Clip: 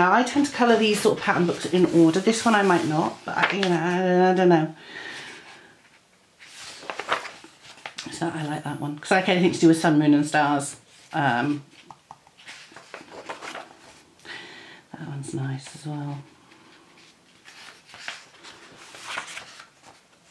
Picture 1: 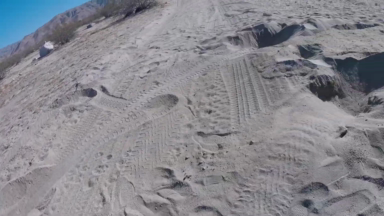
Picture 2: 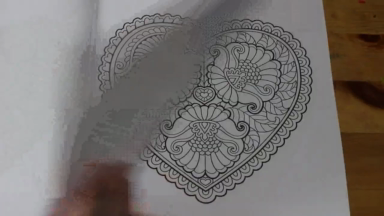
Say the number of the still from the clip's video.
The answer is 2